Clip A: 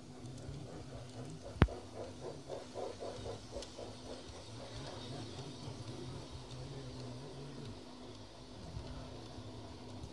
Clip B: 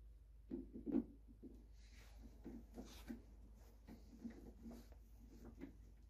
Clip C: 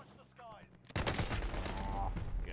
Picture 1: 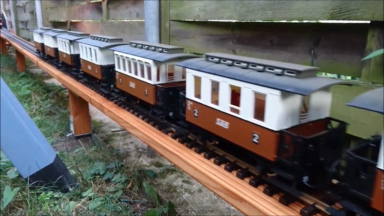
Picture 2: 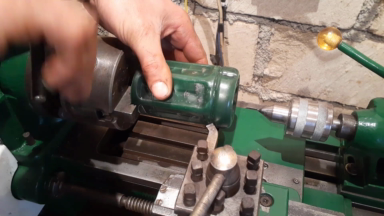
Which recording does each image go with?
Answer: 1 A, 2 B